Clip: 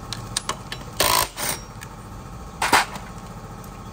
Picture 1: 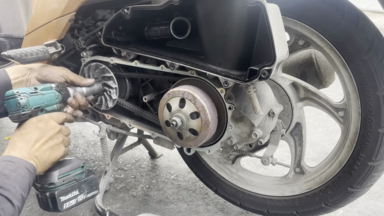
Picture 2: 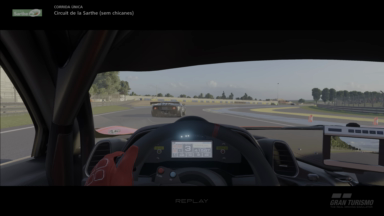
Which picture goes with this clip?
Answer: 1